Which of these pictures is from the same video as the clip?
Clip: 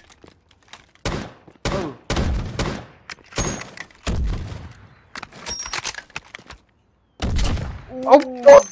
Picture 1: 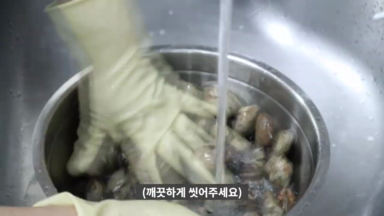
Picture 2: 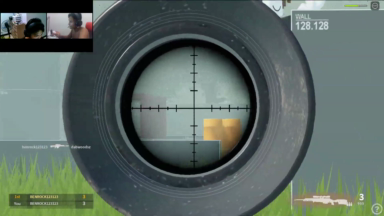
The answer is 2